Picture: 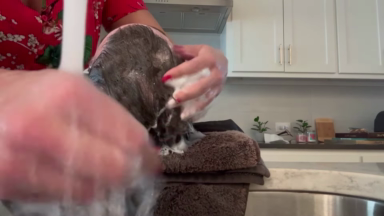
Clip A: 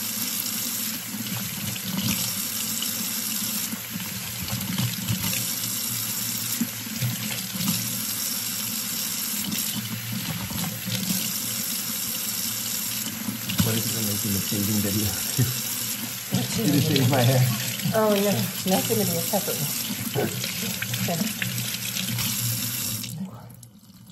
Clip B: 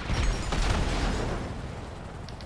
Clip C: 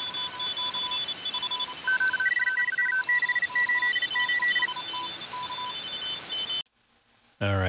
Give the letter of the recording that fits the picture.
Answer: A